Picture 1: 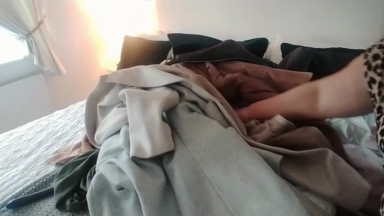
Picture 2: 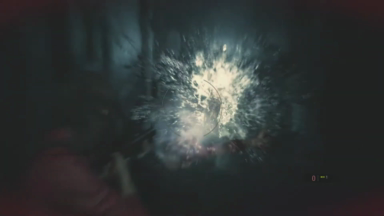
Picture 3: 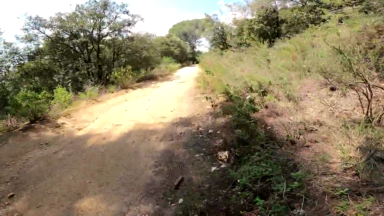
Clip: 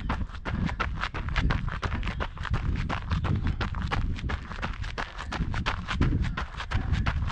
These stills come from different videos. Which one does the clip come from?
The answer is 3